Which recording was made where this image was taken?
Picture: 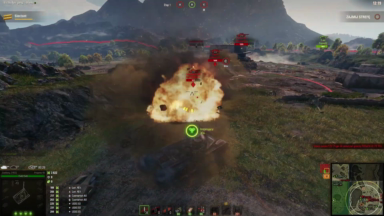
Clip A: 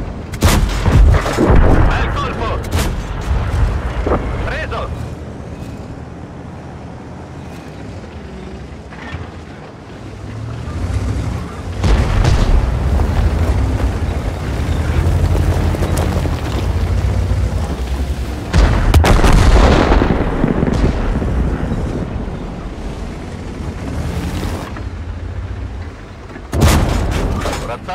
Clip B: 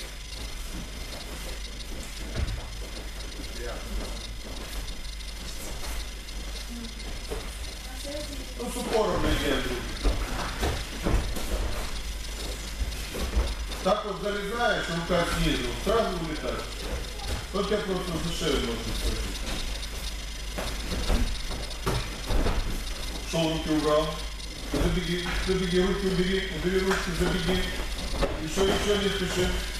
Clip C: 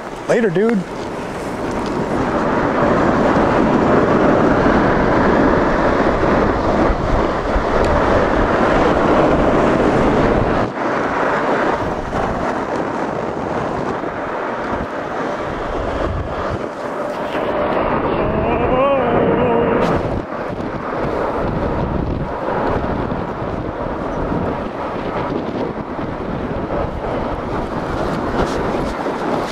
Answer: A